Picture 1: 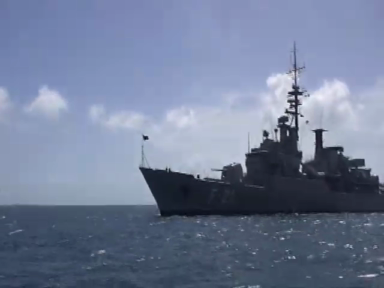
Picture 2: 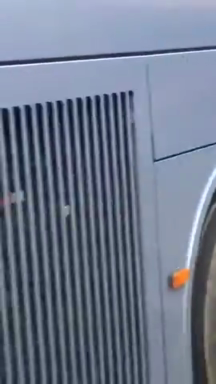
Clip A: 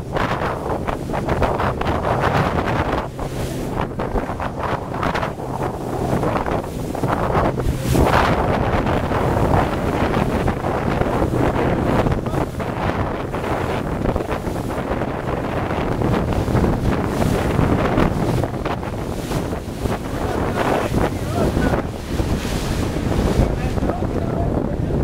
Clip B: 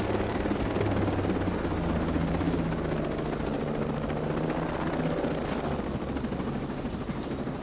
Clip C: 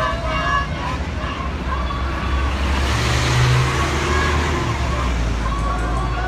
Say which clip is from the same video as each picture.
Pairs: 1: A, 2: C